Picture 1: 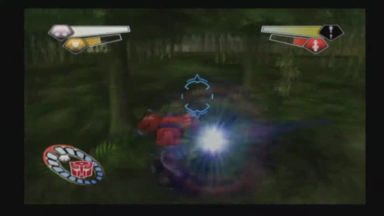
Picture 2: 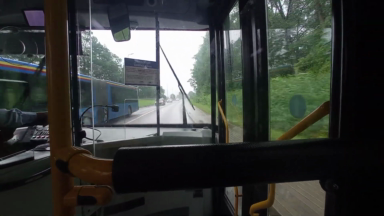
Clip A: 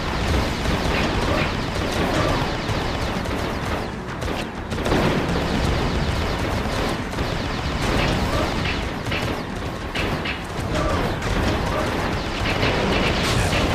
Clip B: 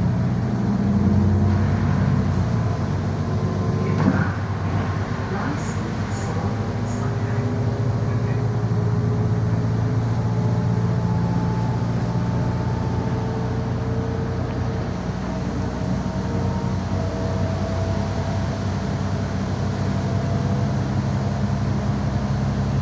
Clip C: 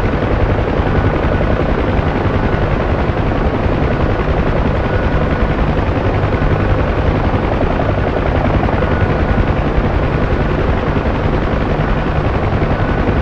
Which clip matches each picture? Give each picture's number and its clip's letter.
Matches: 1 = A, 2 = B